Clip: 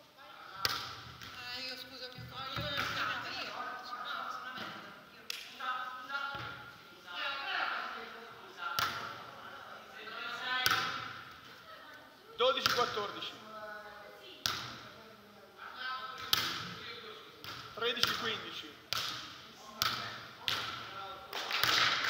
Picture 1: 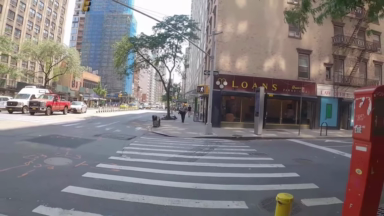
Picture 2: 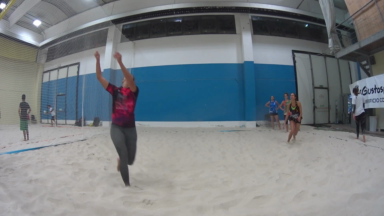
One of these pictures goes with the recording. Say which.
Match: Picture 2